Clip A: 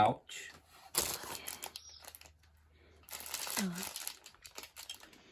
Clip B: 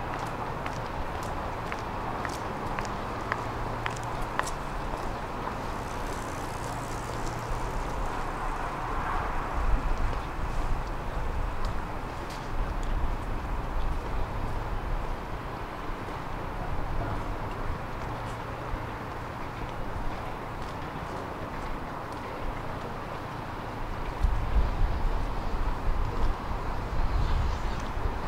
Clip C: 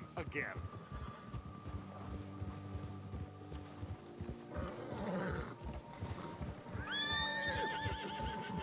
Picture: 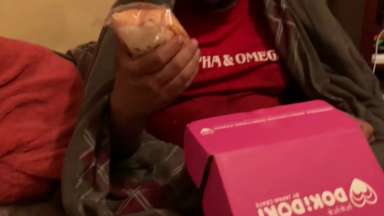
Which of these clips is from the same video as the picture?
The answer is A